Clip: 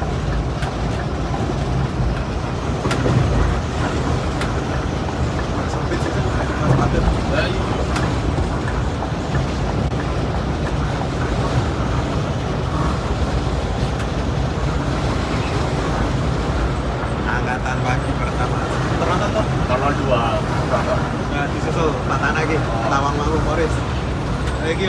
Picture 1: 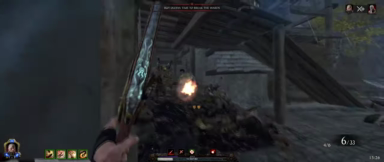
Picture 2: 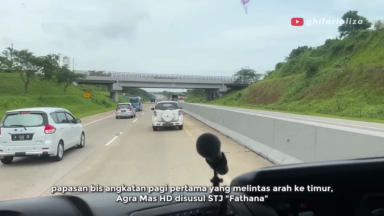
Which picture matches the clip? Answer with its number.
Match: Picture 2